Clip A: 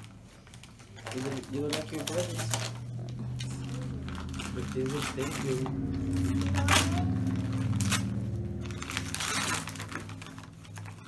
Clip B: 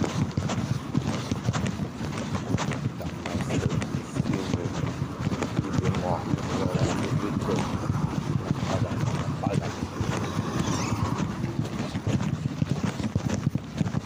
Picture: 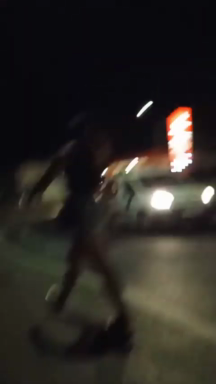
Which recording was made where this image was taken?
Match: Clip B